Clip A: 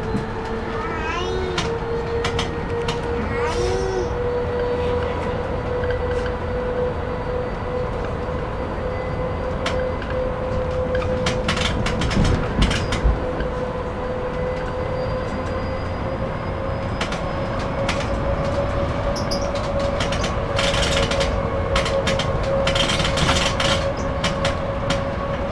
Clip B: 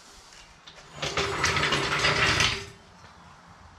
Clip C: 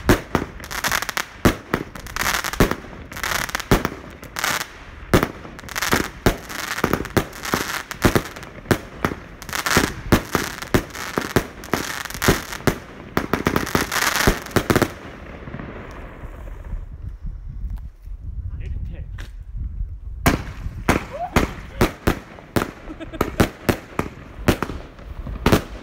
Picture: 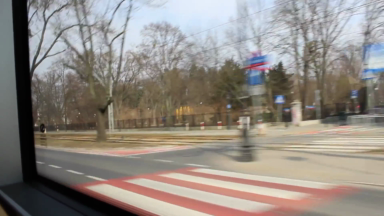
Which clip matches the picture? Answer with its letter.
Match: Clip A